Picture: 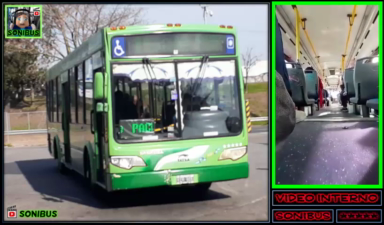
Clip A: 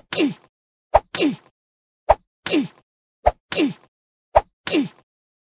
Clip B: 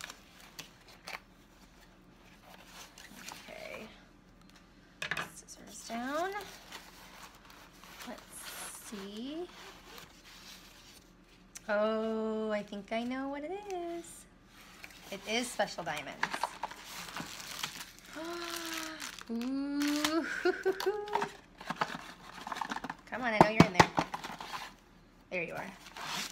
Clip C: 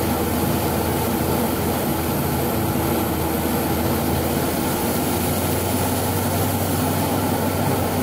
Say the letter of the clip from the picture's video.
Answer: C